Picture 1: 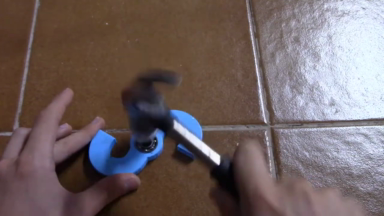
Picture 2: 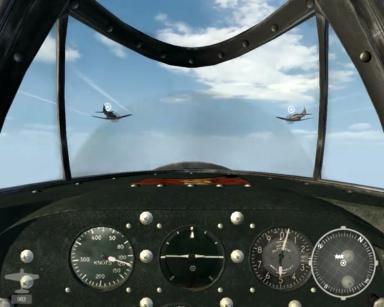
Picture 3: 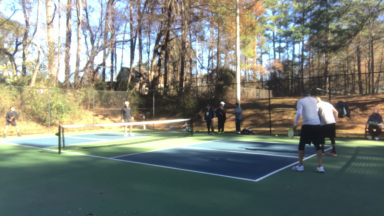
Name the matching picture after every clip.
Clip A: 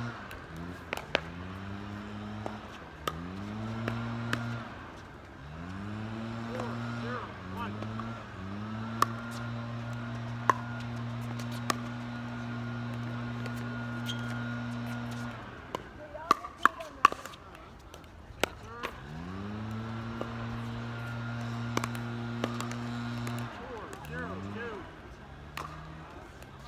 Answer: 3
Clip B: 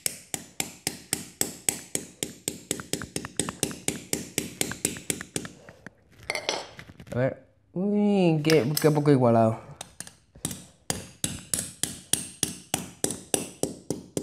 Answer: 1